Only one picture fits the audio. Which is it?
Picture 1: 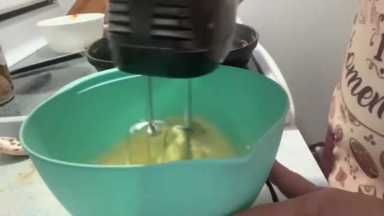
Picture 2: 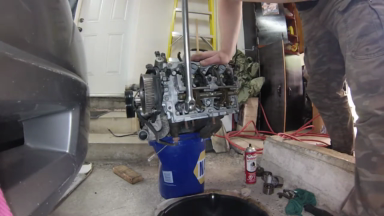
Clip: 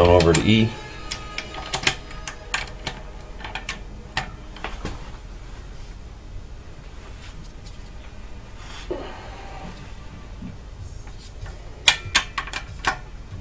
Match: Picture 2